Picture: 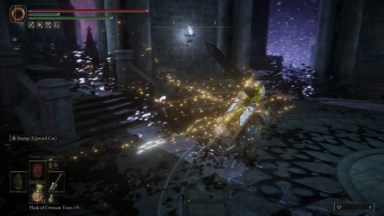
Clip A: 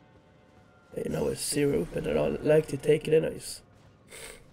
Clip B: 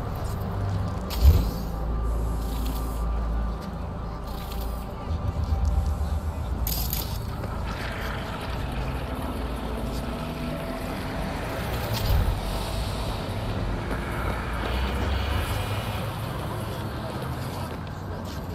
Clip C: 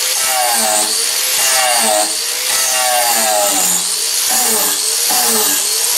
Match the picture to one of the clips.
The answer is A